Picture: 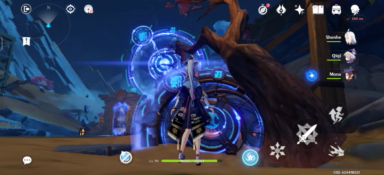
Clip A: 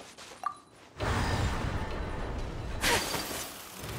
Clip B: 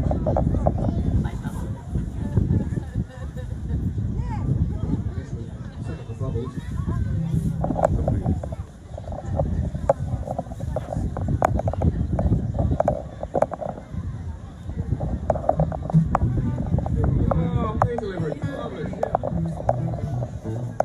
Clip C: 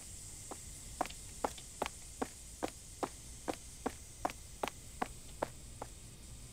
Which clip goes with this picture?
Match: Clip A